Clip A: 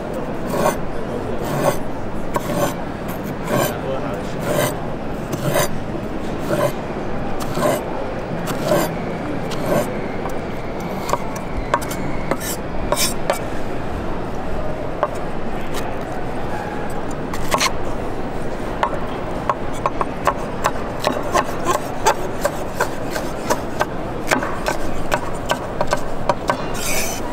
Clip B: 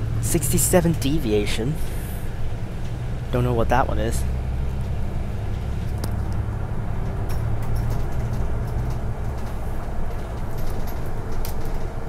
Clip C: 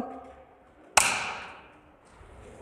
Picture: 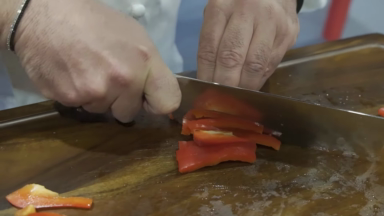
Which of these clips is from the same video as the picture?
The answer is A